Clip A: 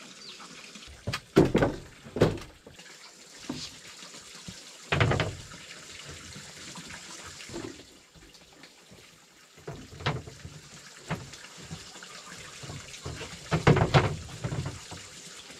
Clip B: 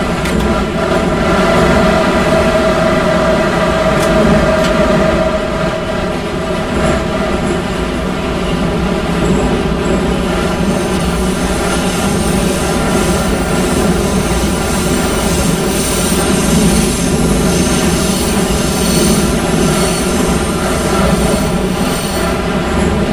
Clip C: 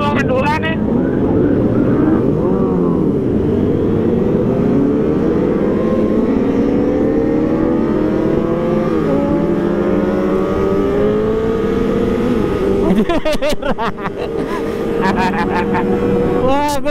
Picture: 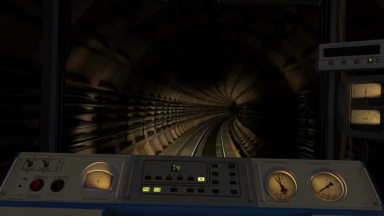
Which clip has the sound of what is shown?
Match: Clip B